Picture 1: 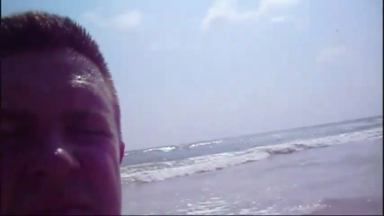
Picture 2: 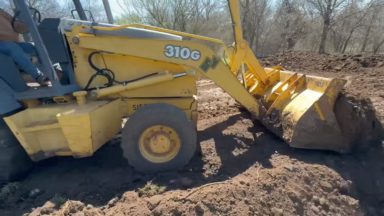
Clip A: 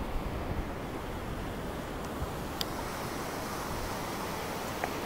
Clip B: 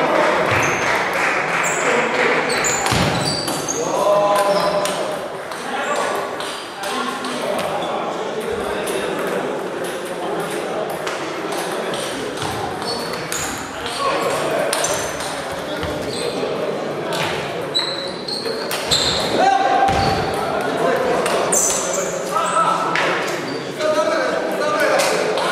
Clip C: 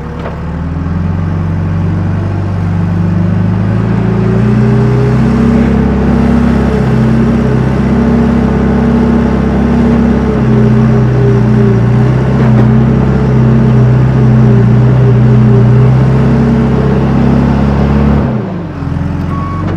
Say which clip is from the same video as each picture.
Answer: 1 A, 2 C